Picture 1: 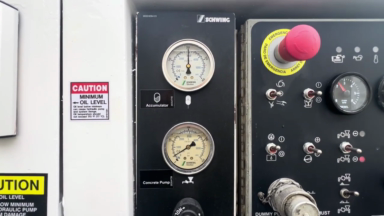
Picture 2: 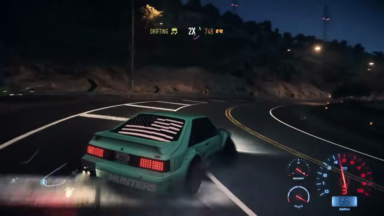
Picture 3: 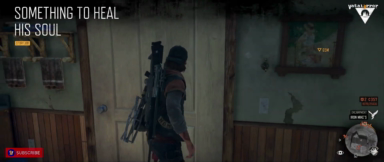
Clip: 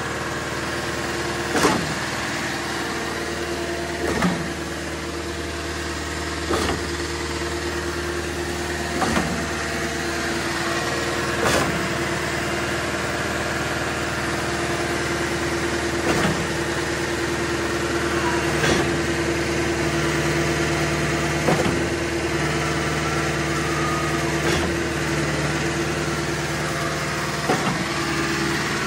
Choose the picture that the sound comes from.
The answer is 1